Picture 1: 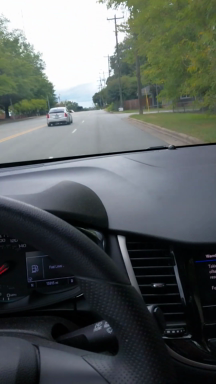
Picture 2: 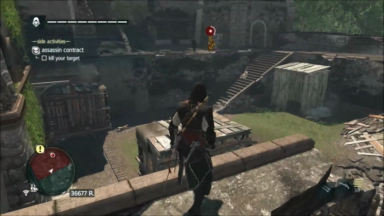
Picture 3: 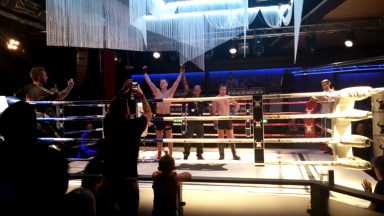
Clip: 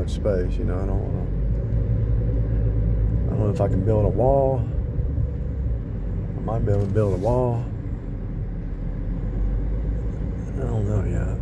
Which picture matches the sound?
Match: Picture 1